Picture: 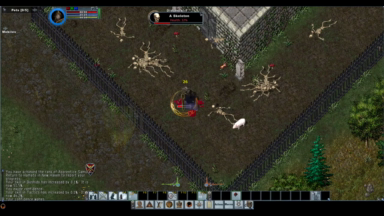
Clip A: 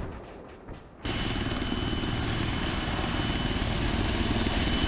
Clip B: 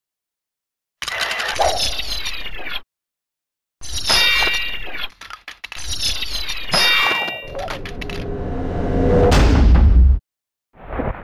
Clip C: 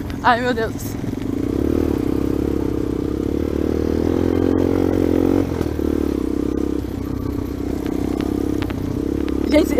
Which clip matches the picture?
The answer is B